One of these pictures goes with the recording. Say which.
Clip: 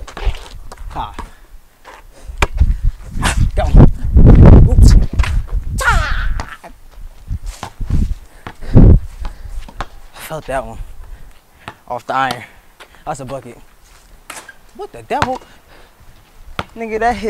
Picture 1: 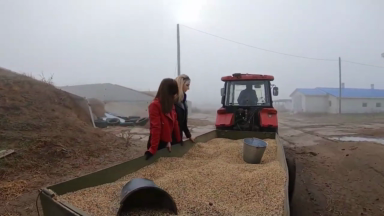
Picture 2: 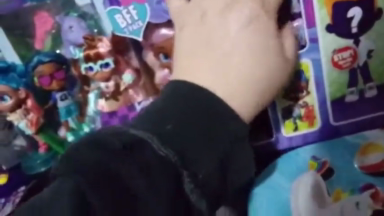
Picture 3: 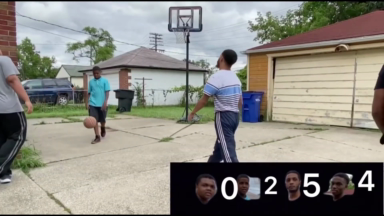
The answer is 3